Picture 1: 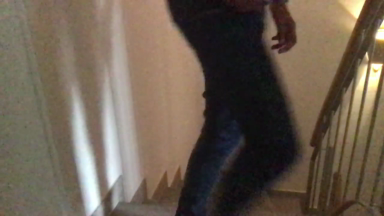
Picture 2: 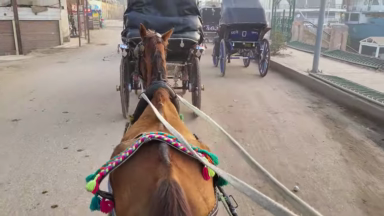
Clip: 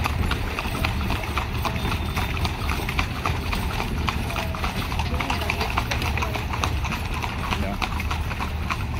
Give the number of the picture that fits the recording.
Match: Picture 2